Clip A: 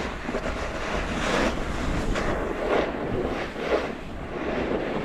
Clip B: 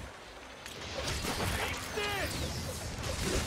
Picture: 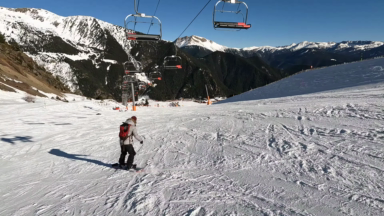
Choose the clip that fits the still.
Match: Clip A